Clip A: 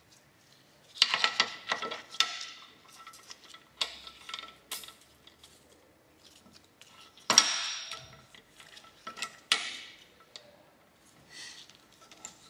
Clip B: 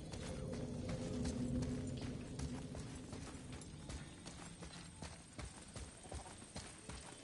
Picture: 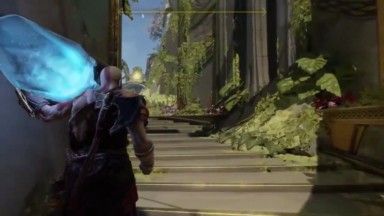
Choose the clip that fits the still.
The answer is B